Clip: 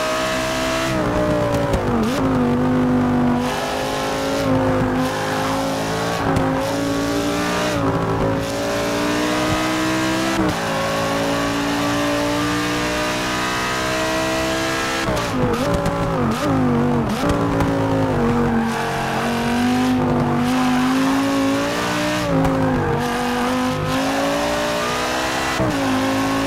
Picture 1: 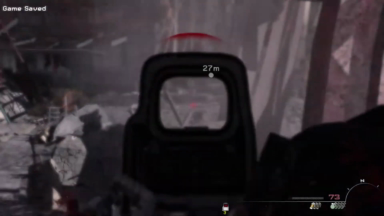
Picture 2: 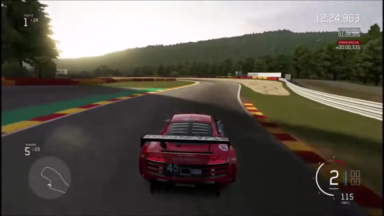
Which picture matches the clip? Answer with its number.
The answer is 2